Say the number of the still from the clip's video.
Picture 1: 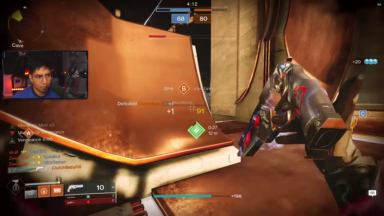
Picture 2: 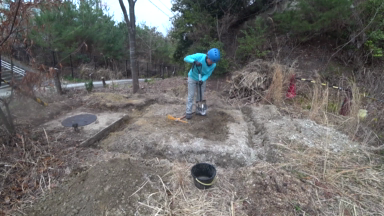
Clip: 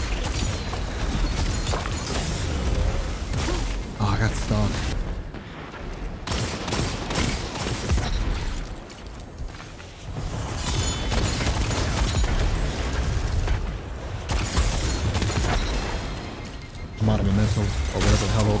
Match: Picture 1